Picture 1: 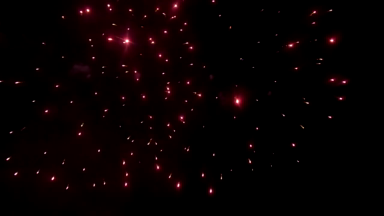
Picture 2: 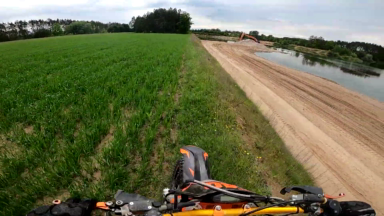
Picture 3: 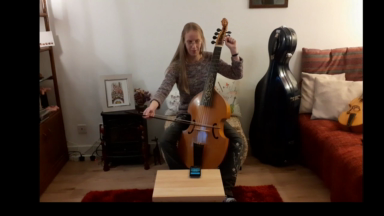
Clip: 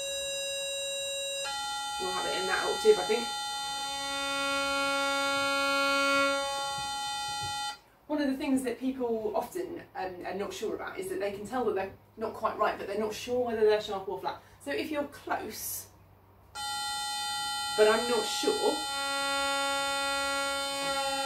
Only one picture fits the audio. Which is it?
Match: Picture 3